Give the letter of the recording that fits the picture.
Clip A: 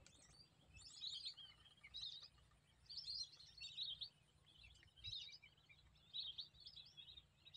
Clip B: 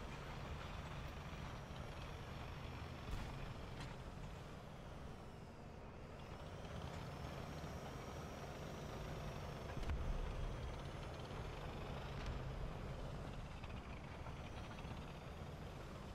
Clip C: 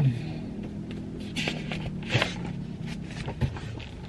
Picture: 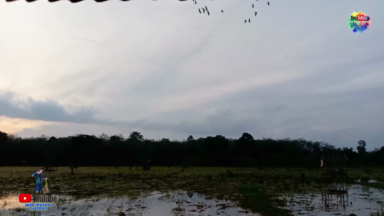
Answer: A